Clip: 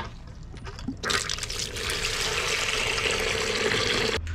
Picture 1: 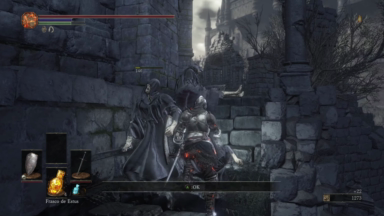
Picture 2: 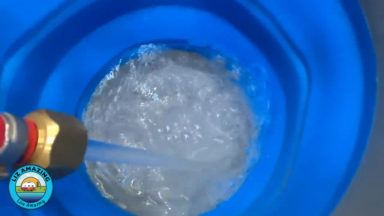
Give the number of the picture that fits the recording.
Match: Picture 2